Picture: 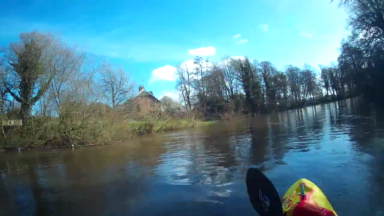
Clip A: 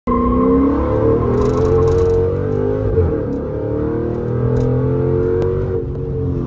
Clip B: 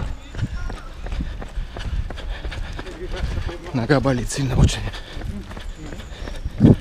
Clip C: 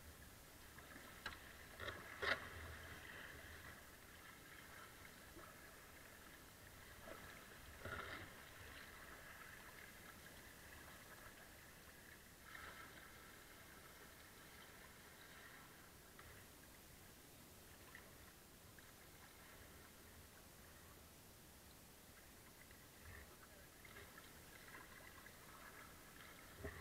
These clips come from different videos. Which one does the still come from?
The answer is C